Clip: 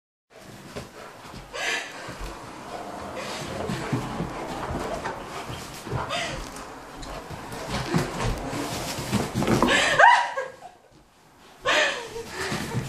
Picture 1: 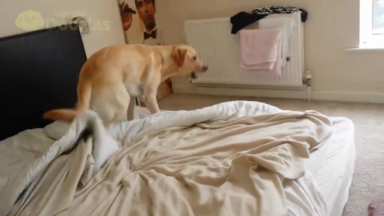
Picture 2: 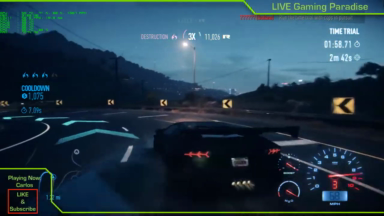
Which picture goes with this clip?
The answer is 1